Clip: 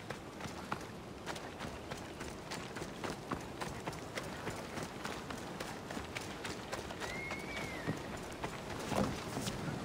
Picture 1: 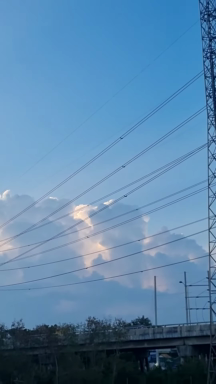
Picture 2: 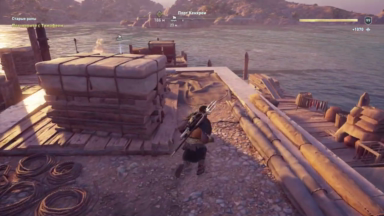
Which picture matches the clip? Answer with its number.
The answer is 2